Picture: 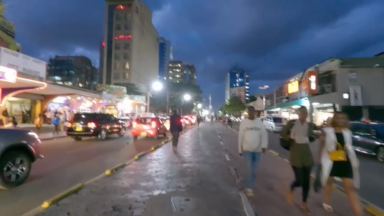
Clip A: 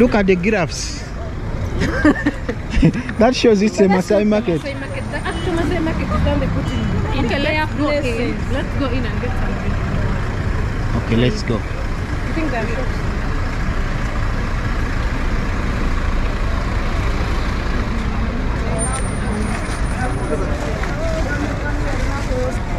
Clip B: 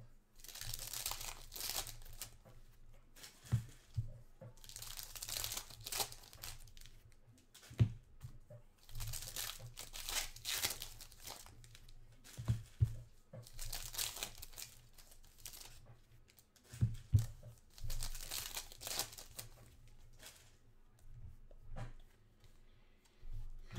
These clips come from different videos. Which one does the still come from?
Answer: A